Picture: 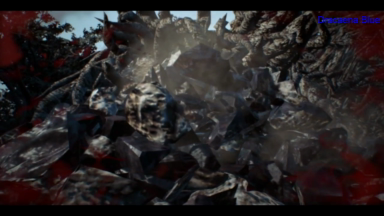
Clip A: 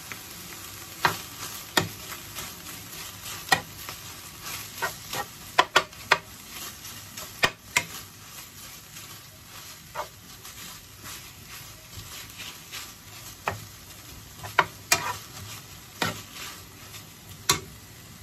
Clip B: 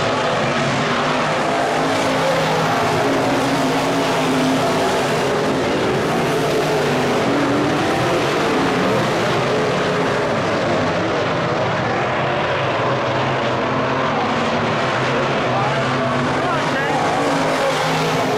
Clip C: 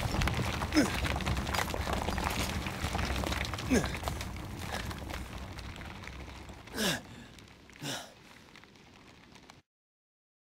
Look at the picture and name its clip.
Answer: C